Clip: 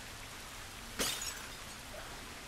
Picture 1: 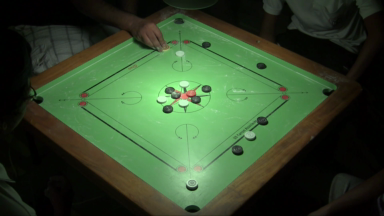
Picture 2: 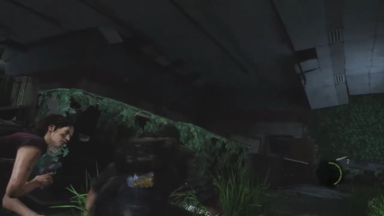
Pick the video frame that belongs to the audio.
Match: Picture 2